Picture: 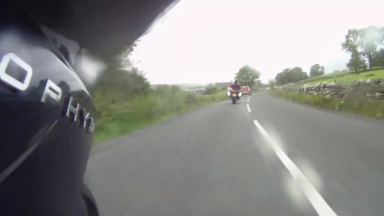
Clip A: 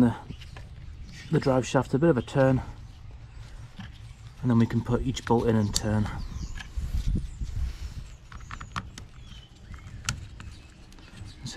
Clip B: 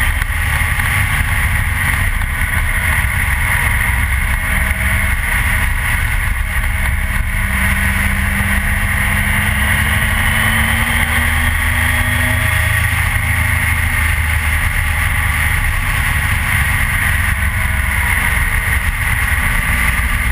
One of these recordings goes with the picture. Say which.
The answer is B